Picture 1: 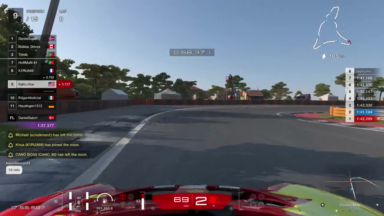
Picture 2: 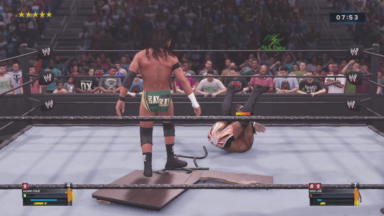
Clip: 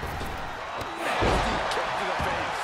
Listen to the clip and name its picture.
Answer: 2